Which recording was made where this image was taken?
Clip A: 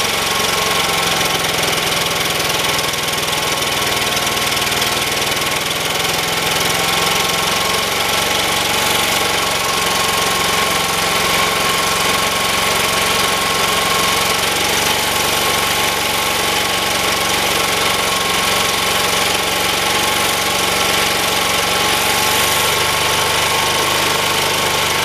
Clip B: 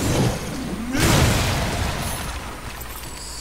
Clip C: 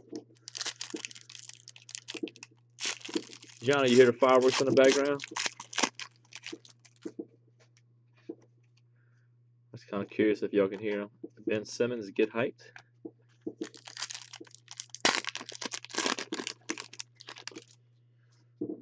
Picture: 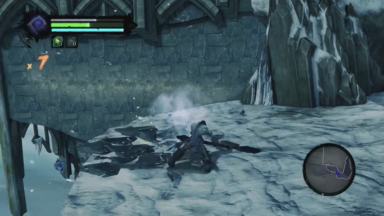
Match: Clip B